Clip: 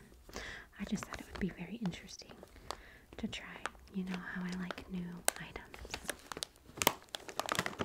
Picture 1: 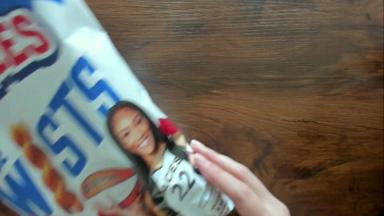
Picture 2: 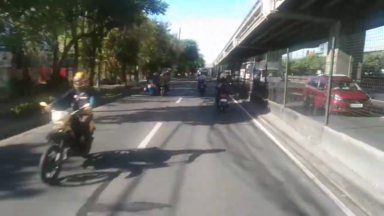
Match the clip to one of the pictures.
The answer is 1